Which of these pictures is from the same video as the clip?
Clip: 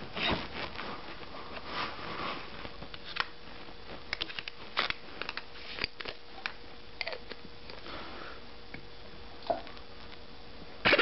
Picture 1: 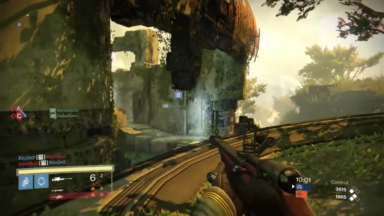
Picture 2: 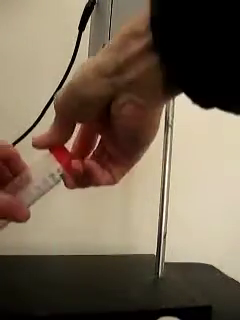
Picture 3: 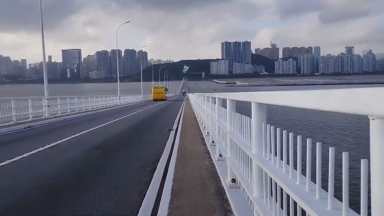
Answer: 2